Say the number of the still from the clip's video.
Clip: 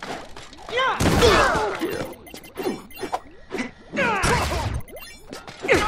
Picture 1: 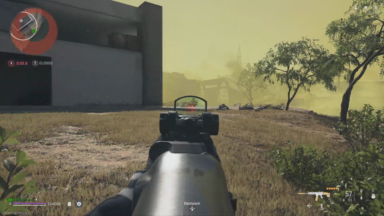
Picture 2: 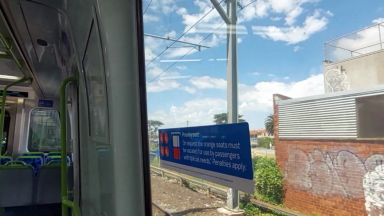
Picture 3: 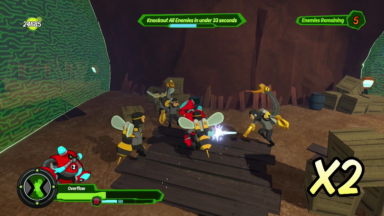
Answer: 3